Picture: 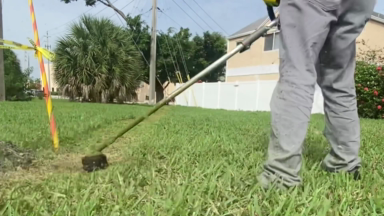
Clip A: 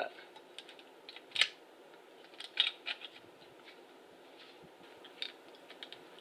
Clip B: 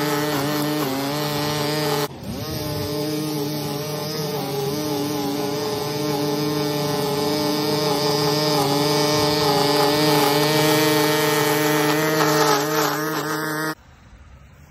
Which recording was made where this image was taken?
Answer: B